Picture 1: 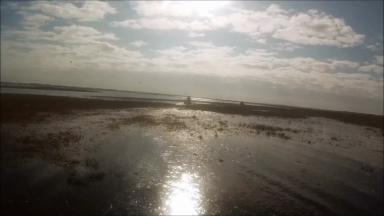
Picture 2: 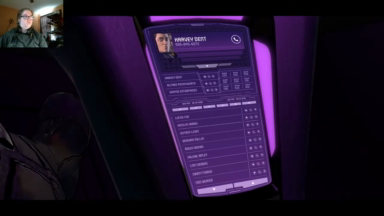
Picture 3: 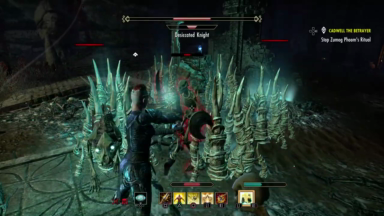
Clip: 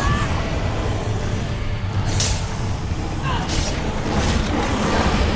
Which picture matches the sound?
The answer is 3